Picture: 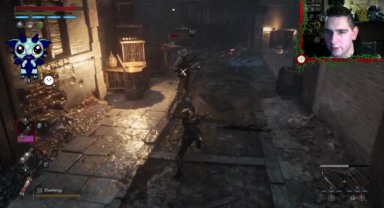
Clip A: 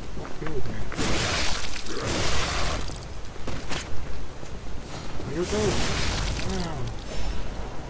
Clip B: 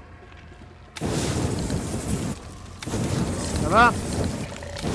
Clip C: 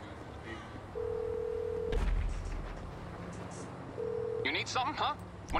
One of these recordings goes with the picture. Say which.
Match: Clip A